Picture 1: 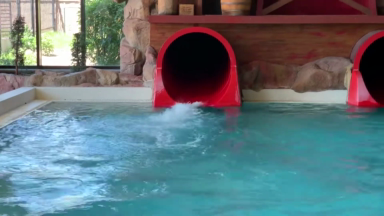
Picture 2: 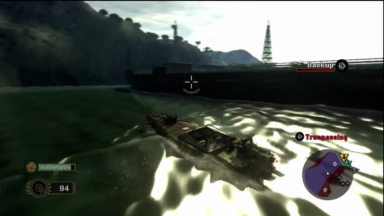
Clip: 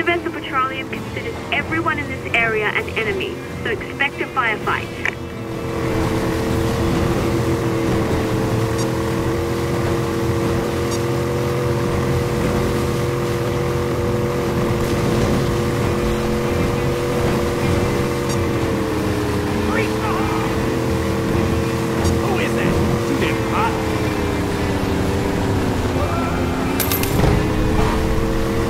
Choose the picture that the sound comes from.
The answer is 2